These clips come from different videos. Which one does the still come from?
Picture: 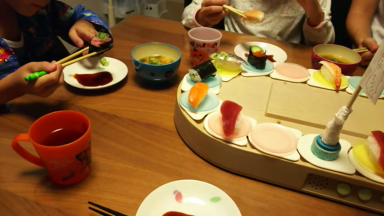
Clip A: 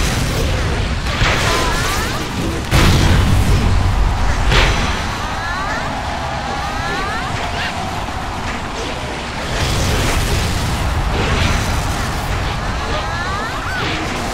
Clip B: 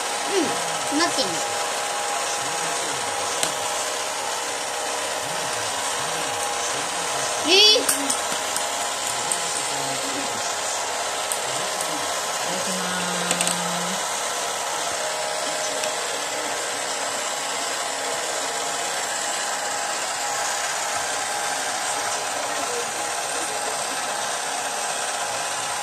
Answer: B